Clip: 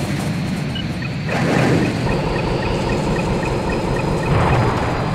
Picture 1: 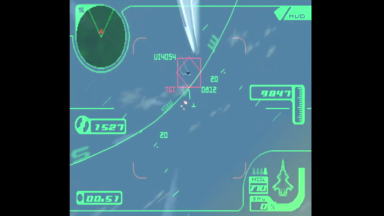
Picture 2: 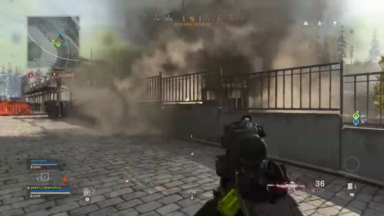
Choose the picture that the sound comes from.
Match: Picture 1